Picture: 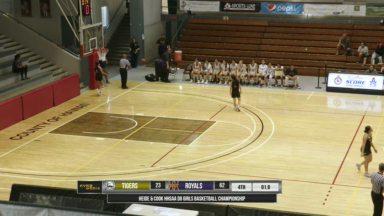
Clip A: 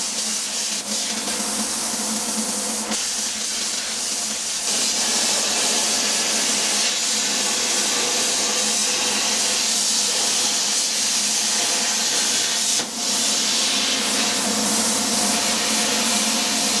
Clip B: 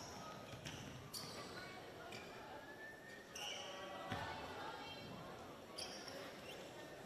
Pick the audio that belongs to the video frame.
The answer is B